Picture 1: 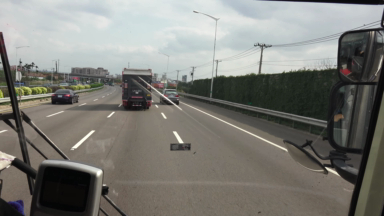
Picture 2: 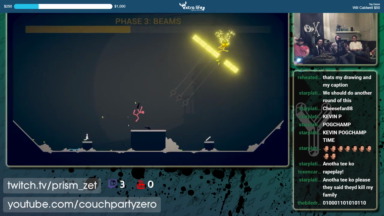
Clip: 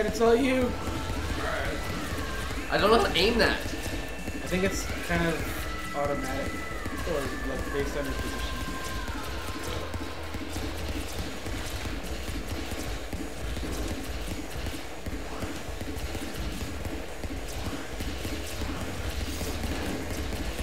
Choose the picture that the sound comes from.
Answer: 2